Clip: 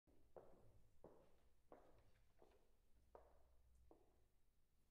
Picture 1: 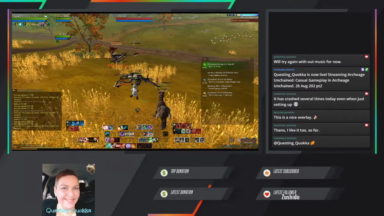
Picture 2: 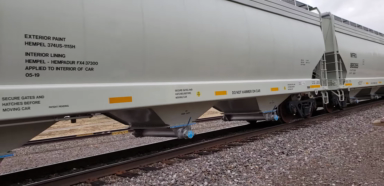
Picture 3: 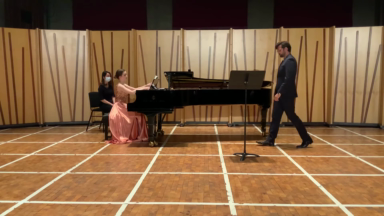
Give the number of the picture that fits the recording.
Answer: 3